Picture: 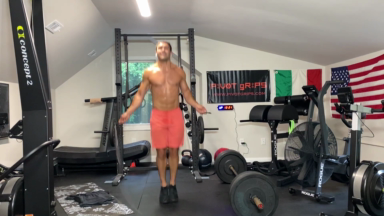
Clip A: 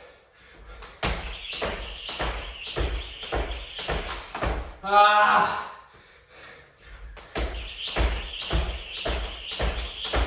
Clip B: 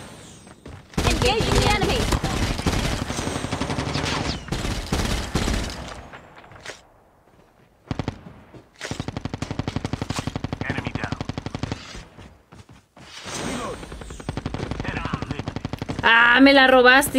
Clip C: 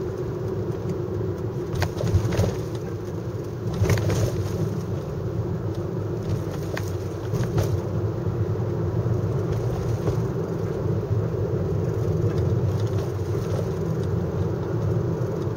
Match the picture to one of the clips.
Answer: A